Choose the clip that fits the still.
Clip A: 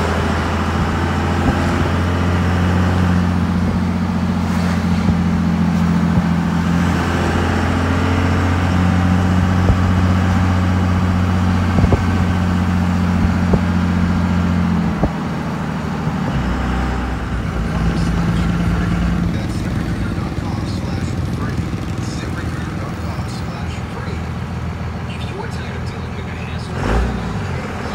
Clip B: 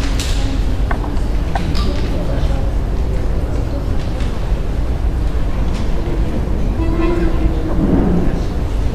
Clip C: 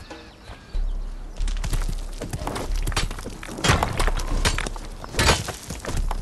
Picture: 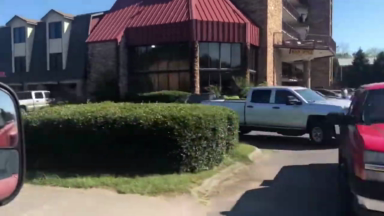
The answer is A